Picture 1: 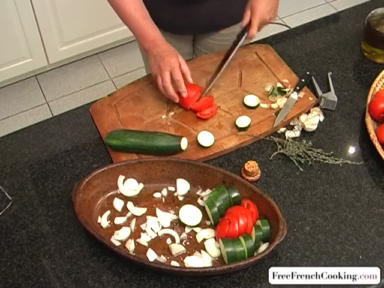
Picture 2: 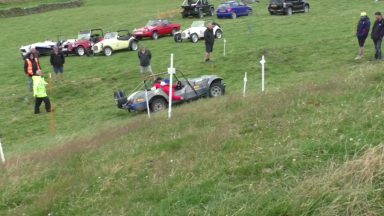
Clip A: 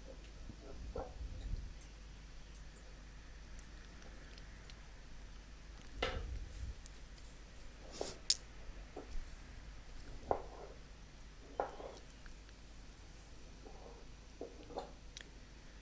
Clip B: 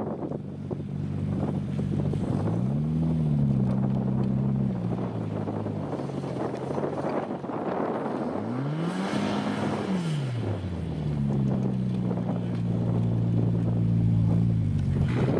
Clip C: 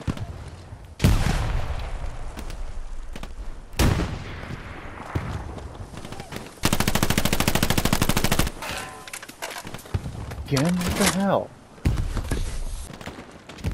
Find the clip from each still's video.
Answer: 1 A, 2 B